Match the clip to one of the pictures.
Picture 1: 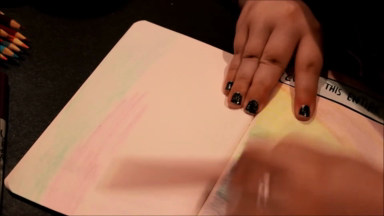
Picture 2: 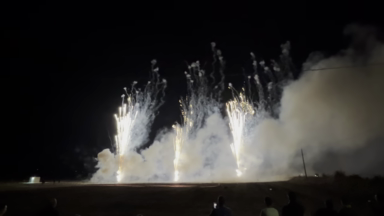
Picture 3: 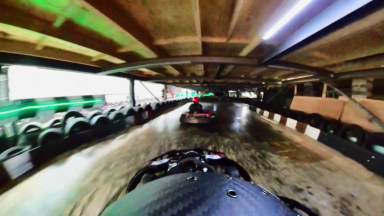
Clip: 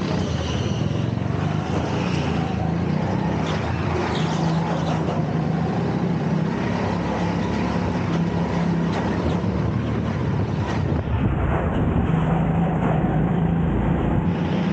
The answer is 3